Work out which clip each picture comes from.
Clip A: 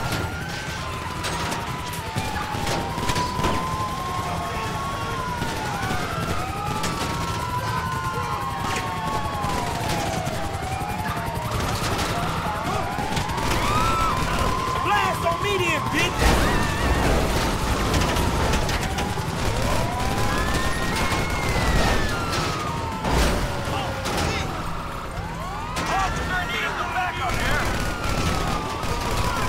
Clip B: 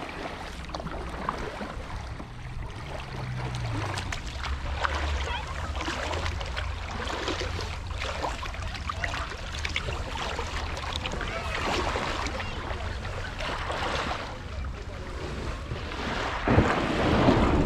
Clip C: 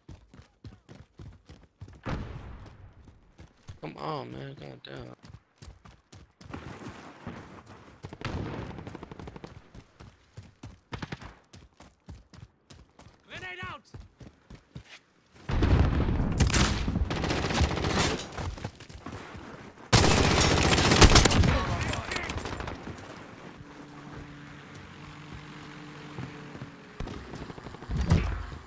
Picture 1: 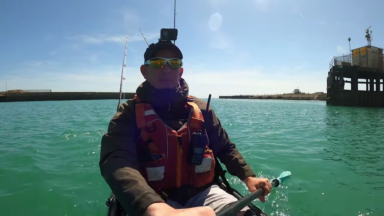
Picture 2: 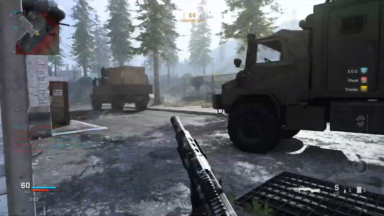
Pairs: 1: B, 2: C